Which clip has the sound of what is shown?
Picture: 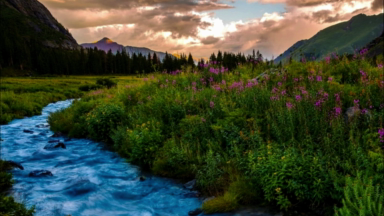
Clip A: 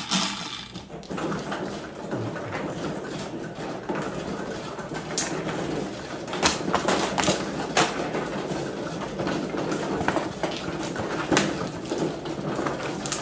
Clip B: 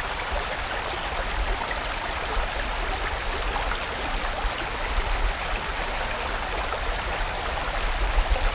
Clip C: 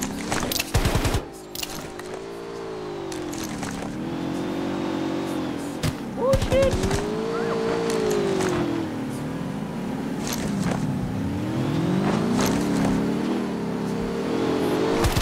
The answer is B